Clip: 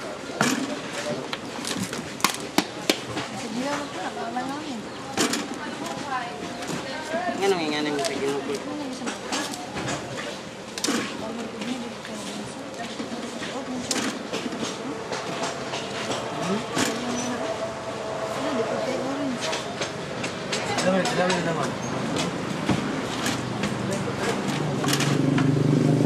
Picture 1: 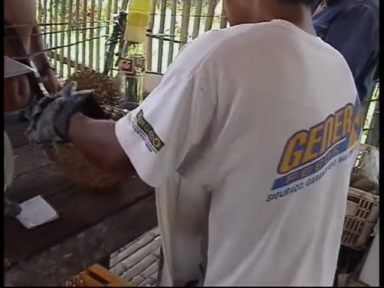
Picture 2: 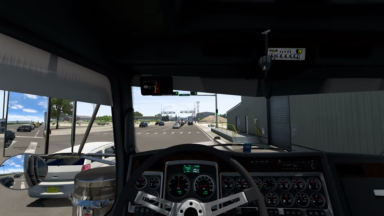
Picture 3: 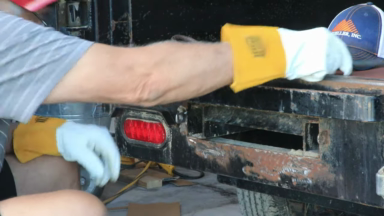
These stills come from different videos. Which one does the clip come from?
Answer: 1